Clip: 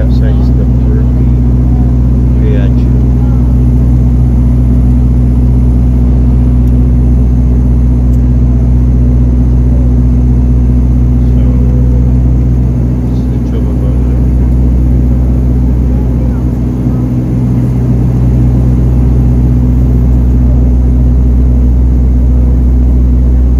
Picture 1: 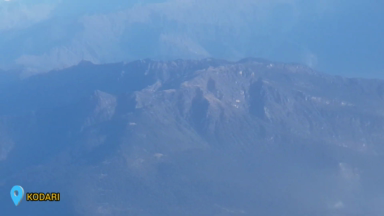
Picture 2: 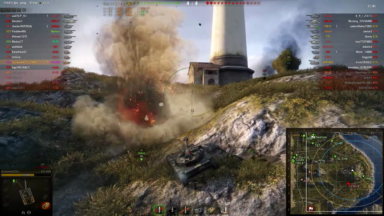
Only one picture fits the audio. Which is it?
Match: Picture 1